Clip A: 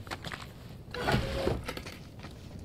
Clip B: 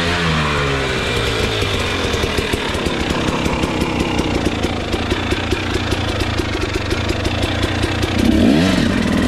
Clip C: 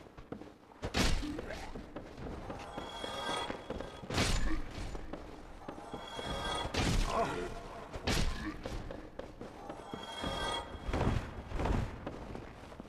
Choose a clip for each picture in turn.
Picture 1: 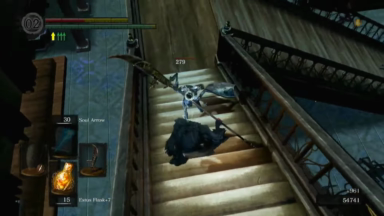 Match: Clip C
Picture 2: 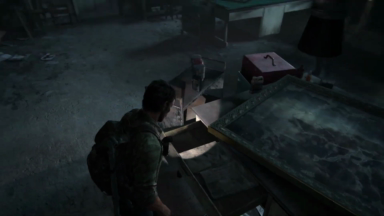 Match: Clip A